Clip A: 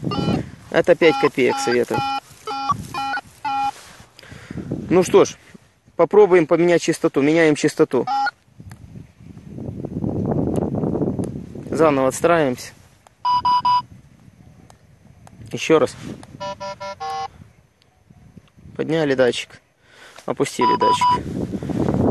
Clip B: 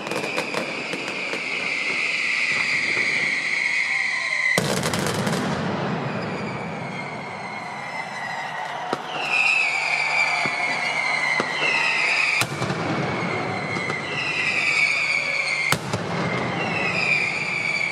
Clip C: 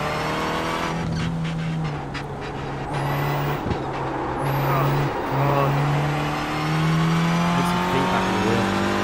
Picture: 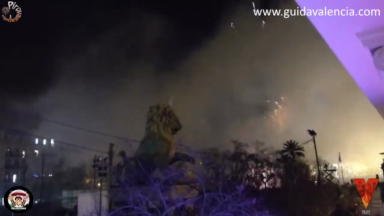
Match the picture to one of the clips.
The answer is B